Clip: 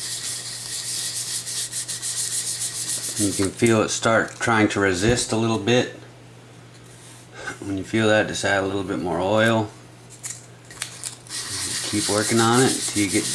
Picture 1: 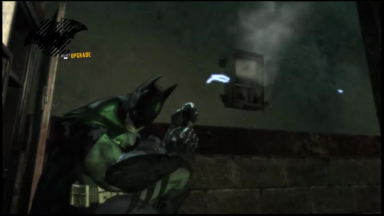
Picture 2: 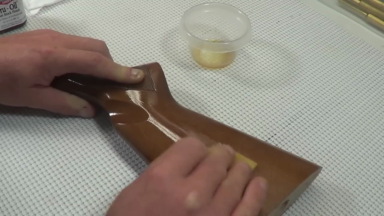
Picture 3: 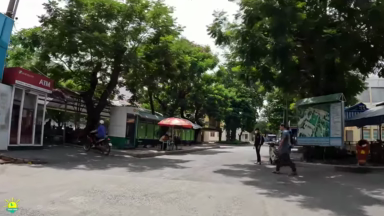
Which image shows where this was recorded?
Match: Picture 2